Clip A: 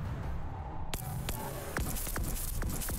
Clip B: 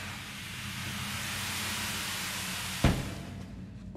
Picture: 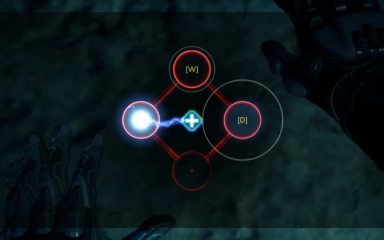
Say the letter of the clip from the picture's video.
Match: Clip A